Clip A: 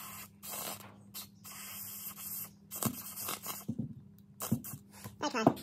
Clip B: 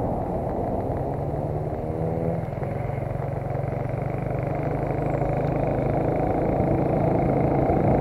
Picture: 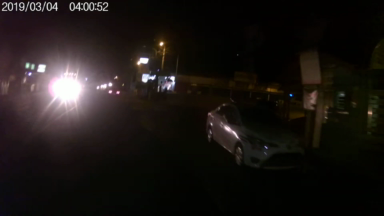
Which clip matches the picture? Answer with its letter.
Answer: B